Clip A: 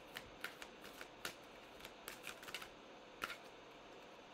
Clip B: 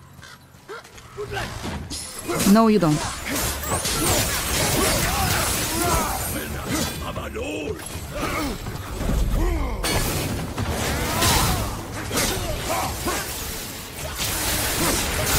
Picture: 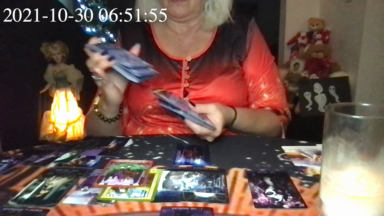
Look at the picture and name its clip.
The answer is A